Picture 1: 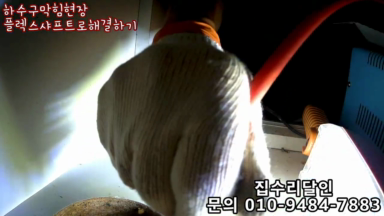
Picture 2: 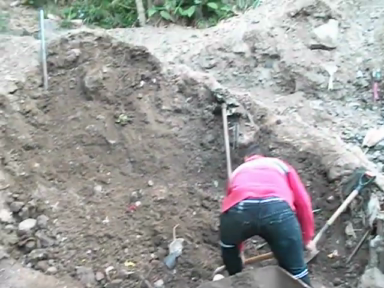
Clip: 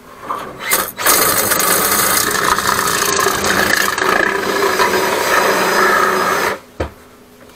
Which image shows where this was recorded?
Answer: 1